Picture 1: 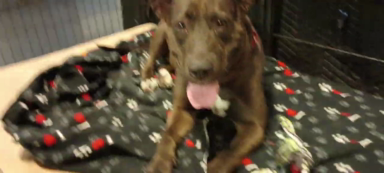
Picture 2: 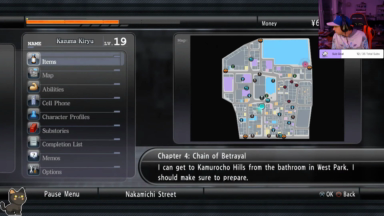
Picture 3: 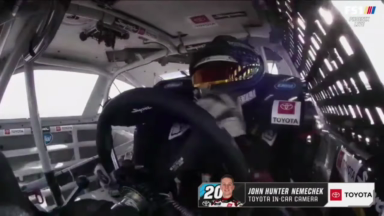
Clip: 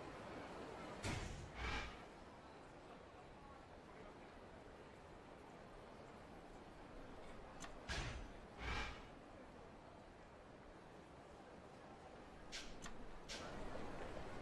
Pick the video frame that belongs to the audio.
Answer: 2